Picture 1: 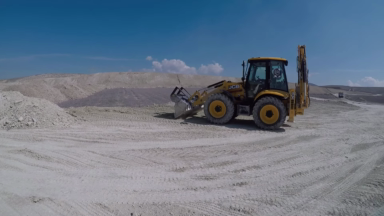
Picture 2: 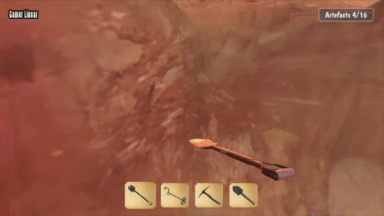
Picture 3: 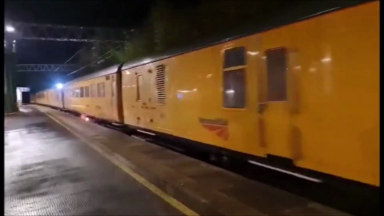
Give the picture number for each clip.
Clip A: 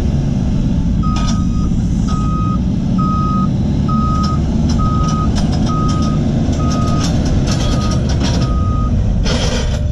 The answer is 1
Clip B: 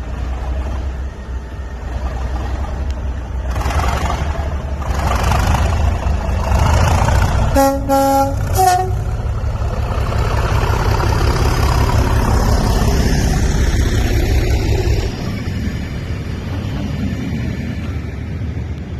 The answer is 3